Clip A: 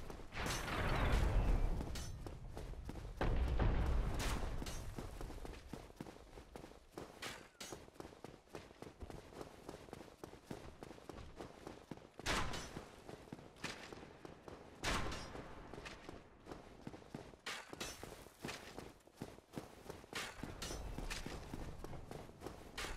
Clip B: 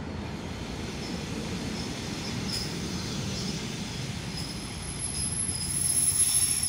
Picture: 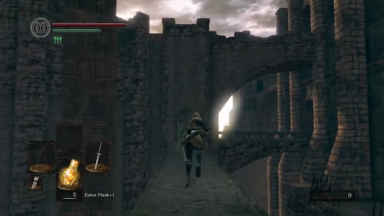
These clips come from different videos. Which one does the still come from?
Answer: A